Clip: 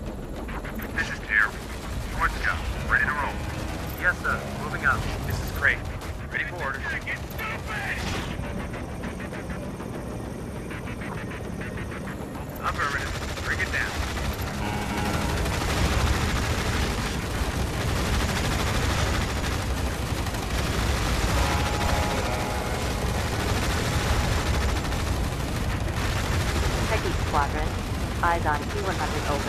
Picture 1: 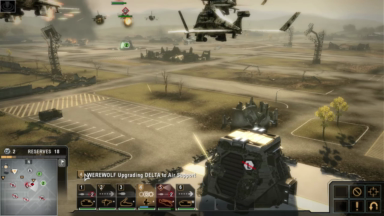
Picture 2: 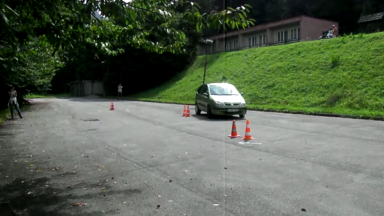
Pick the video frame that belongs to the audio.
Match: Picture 1